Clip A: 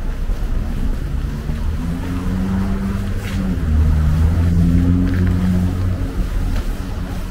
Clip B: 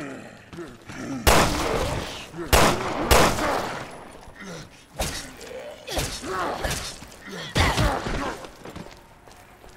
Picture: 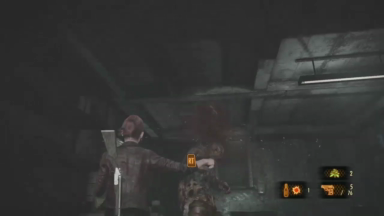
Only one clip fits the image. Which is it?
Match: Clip B